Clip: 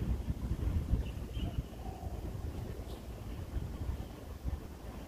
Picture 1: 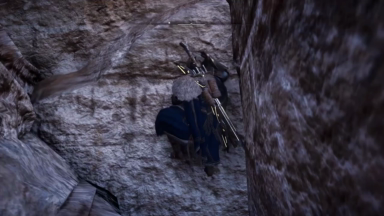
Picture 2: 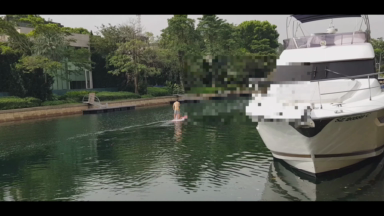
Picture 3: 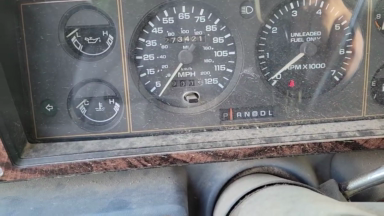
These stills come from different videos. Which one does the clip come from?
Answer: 2